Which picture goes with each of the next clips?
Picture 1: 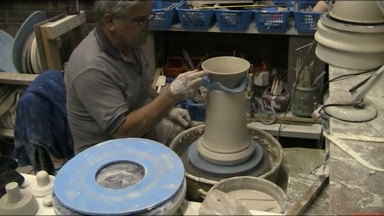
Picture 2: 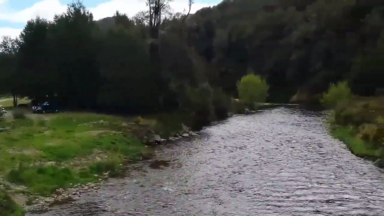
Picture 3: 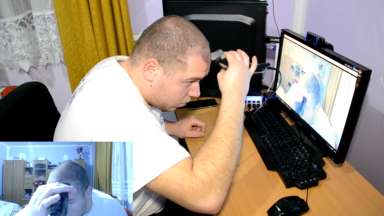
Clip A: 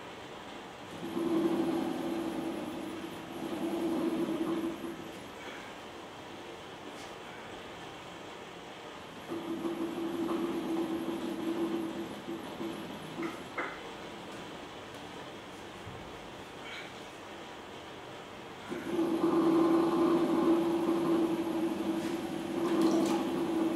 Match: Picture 1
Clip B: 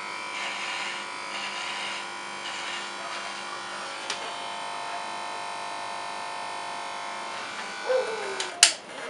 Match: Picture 3